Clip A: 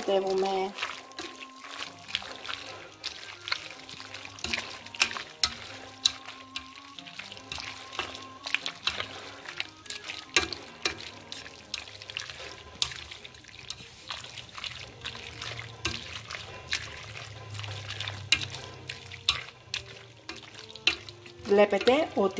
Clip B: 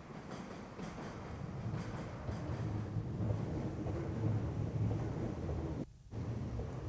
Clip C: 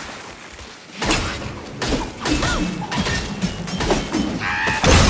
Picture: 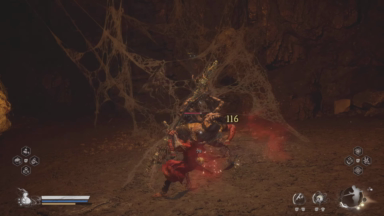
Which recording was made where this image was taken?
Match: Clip C